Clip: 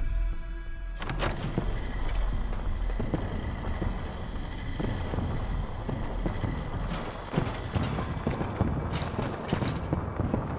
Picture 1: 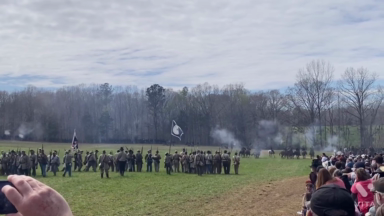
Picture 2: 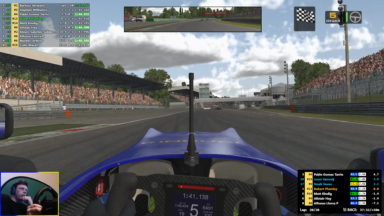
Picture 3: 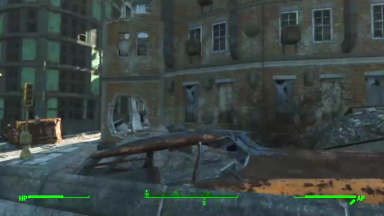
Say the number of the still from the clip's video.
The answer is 3